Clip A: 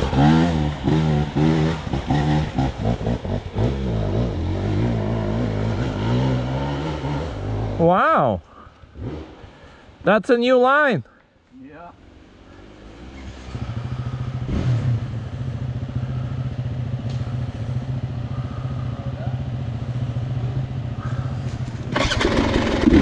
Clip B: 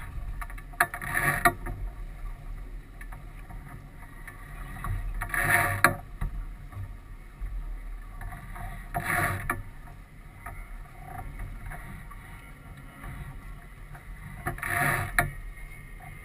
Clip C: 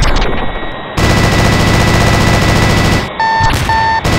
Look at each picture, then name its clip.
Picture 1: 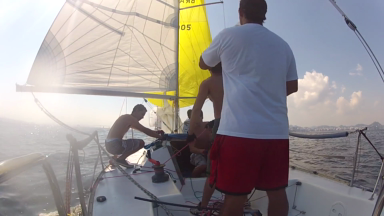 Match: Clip B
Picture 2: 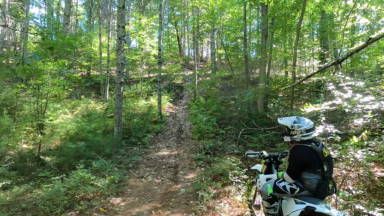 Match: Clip A